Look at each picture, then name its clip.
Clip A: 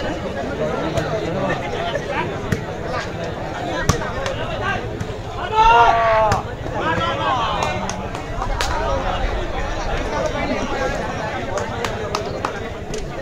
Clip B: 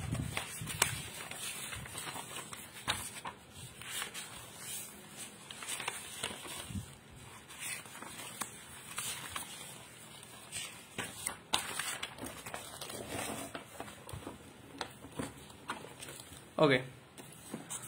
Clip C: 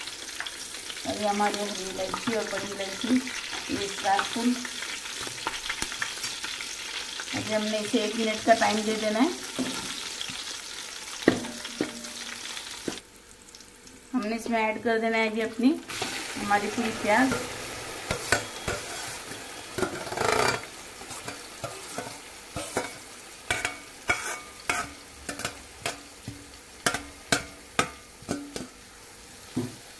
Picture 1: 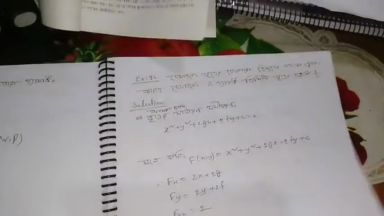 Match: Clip B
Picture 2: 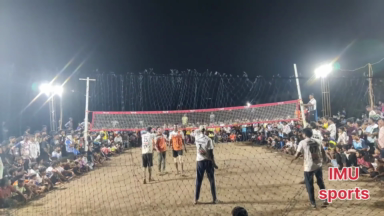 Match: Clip A